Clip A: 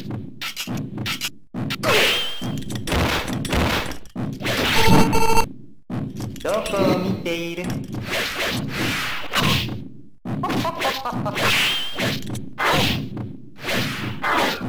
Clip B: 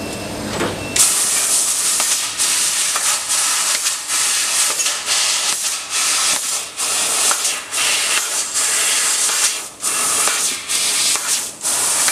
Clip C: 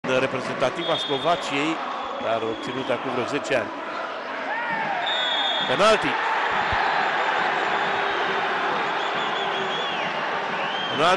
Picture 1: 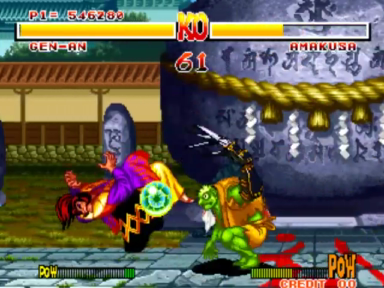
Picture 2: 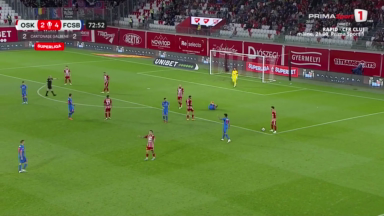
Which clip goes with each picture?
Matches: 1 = A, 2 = C